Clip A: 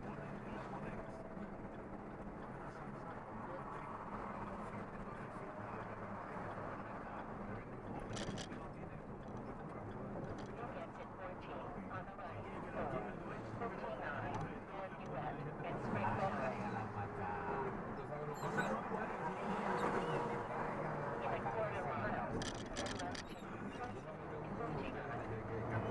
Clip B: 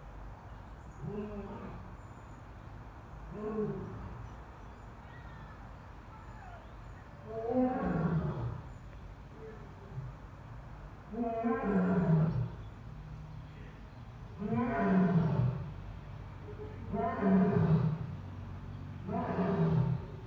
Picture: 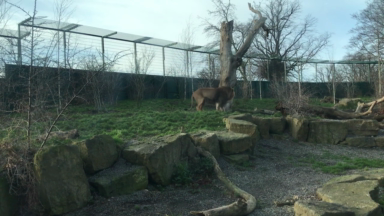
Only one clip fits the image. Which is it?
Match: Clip B